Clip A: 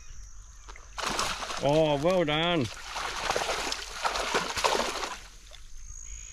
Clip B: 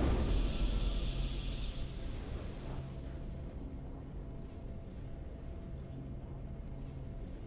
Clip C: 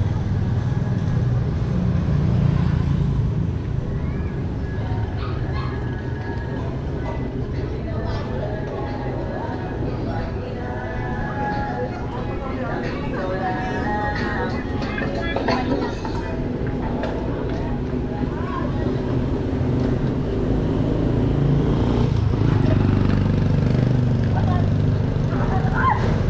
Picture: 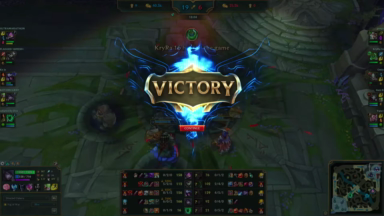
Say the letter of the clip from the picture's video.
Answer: B